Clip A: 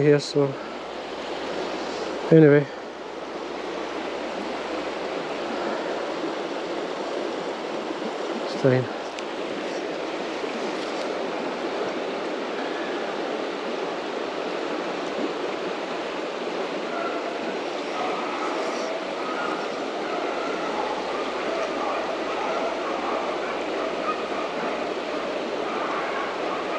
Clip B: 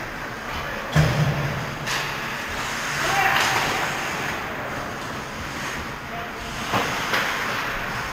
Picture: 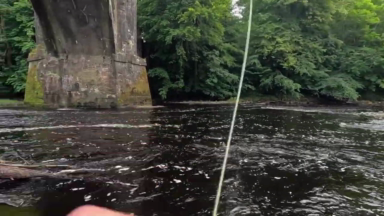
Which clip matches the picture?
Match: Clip A